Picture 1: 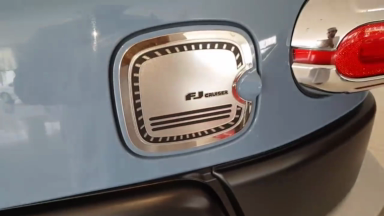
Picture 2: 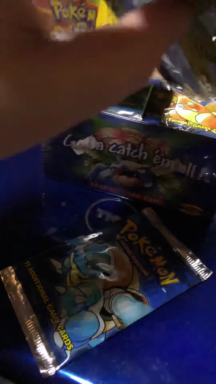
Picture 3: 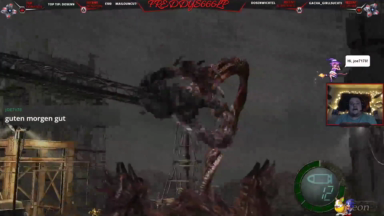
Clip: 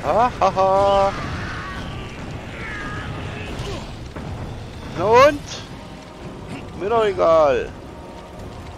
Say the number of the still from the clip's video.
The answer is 3